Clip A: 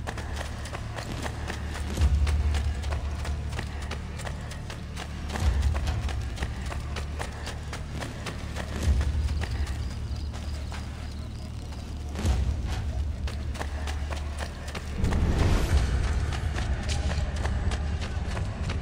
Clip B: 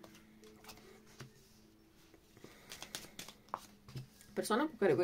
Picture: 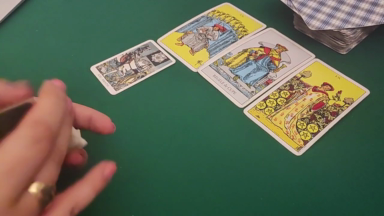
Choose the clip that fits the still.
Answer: B